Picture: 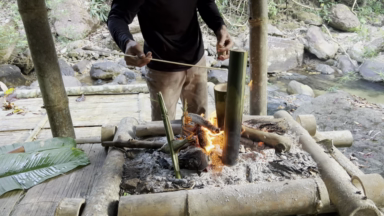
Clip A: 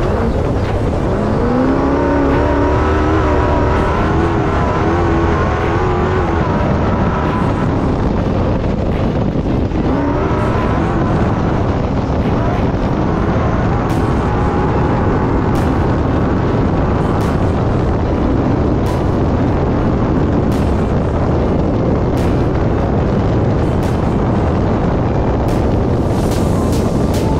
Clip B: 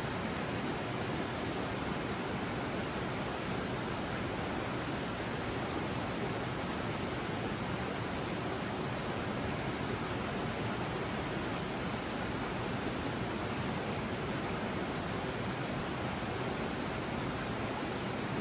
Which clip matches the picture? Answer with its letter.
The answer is B